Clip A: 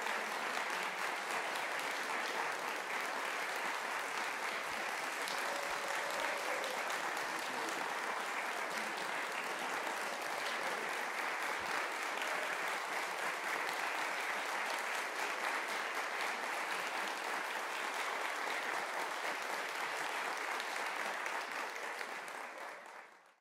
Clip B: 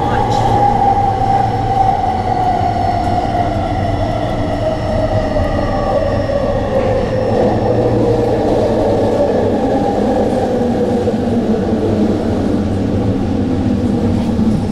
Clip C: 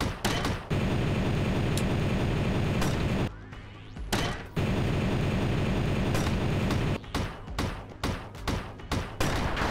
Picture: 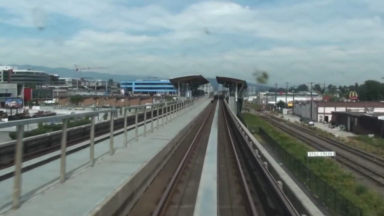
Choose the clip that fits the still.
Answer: B